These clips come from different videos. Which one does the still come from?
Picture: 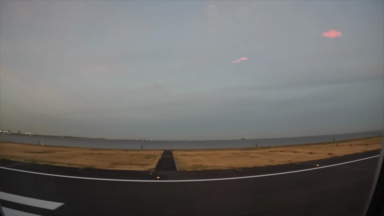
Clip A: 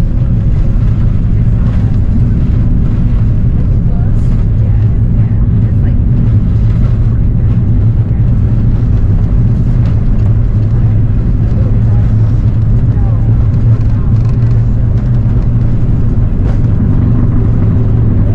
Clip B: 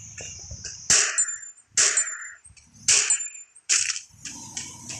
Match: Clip A